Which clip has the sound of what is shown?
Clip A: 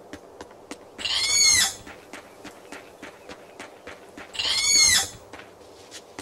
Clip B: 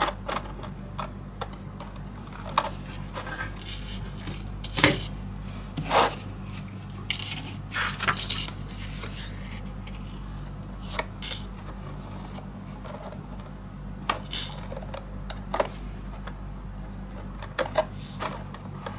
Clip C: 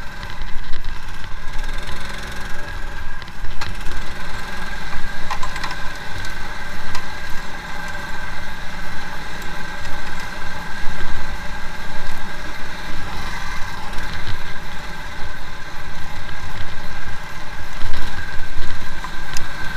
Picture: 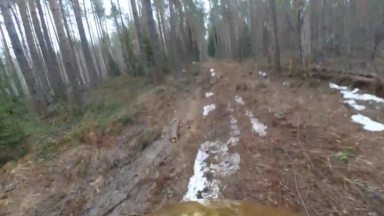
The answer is C